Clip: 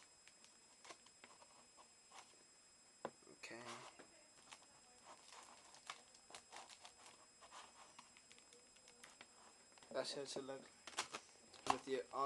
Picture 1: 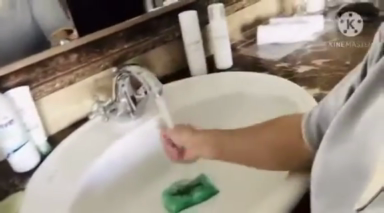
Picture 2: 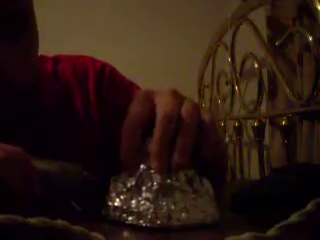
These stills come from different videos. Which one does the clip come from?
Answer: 2